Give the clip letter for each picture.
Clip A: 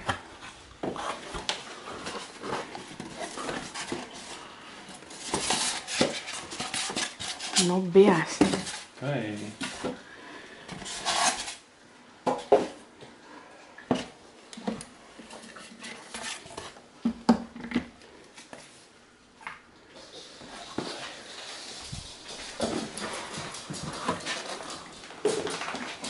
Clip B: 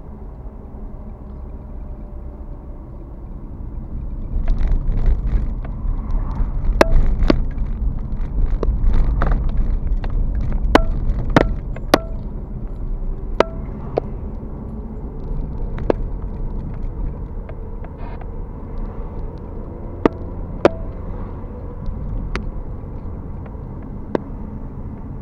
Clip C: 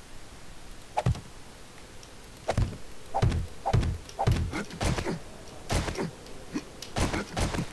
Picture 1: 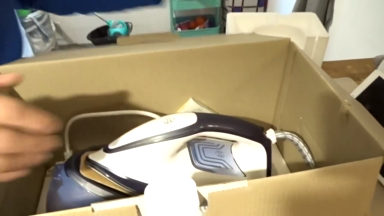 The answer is A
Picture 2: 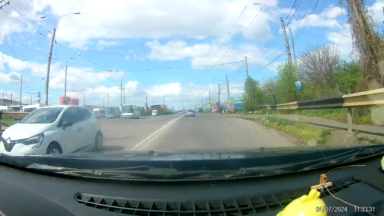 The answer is B